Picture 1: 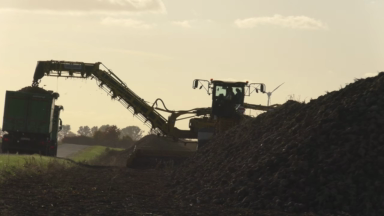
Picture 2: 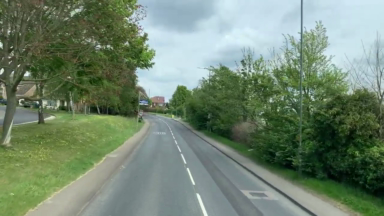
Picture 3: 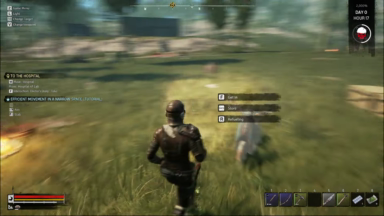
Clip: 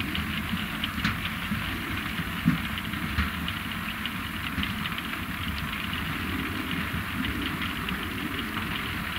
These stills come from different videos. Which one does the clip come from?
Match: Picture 1